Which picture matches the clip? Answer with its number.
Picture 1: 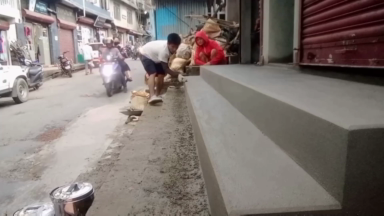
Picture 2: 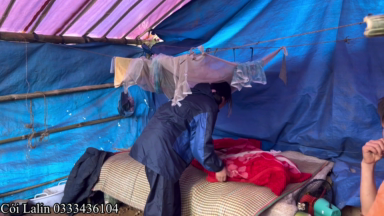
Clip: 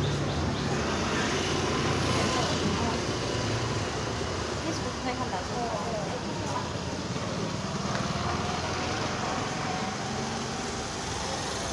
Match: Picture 1